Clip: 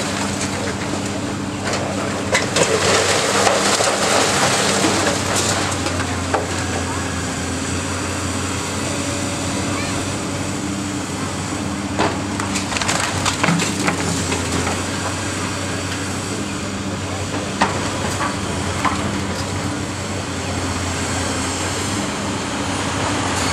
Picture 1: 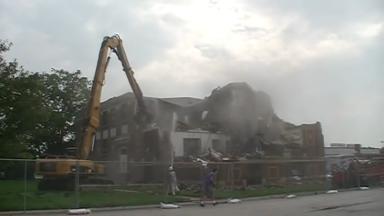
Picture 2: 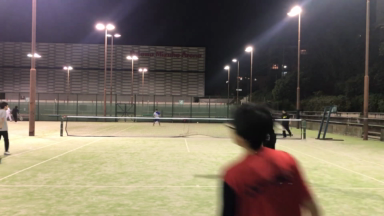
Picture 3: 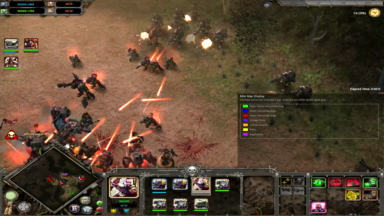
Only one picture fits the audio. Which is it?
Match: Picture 1